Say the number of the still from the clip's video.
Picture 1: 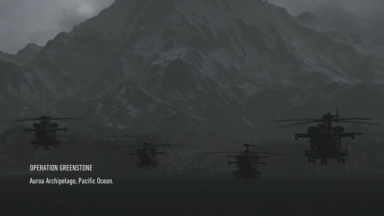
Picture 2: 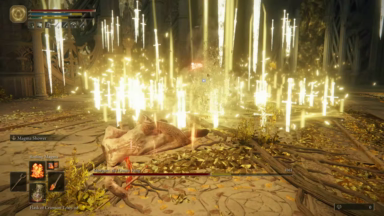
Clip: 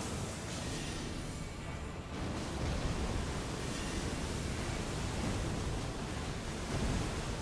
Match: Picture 2